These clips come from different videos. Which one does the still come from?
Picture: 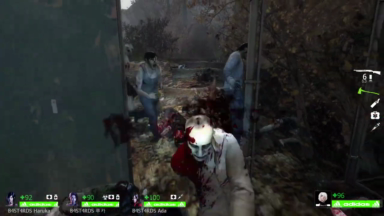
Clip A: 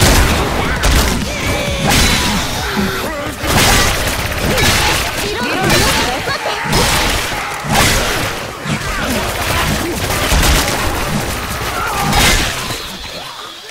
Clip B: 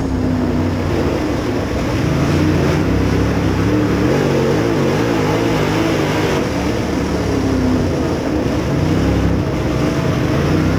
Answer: A